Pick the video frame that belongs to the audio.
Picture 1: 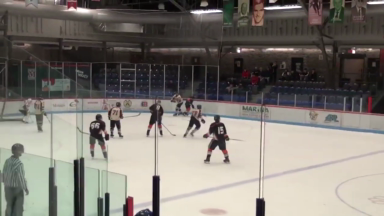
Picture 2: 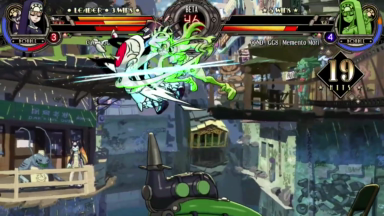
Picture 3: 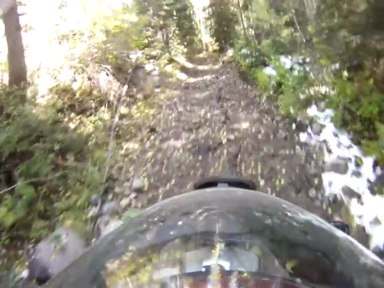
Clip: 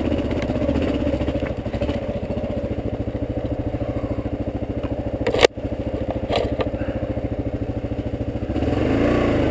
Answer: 3